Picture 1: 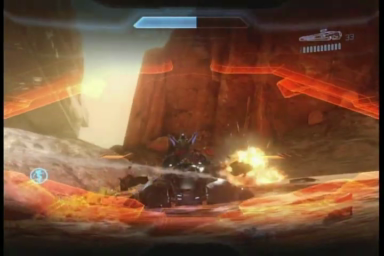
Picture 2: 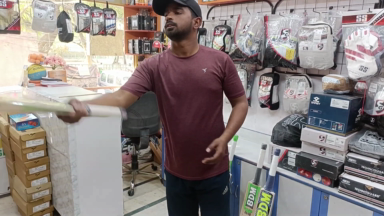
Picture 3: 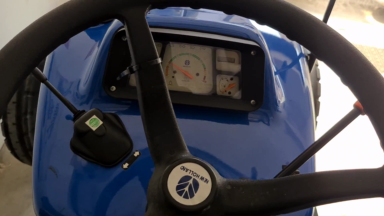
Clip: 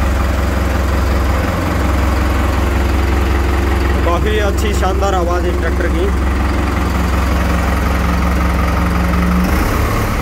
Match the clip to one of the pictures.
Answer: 3